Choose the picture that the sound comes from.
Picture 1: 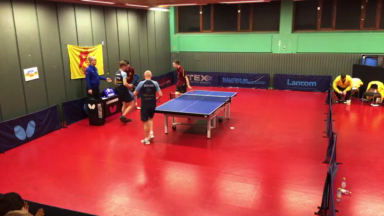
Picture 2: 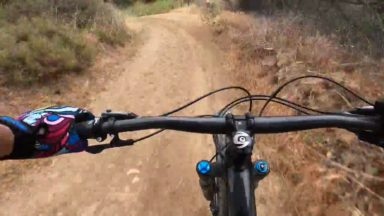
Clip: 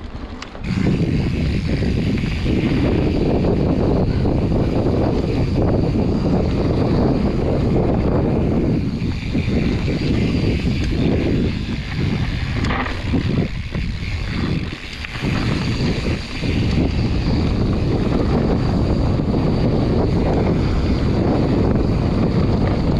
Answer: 2